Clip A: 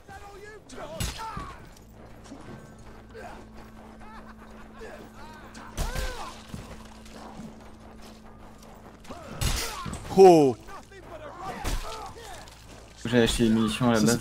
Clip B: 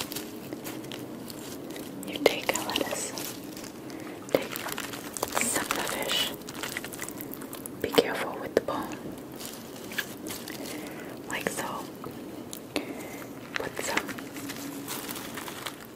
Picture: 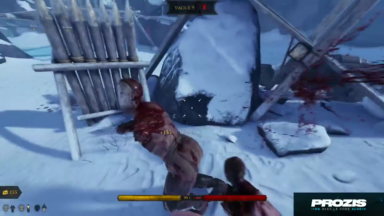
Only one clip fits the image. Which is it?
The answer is A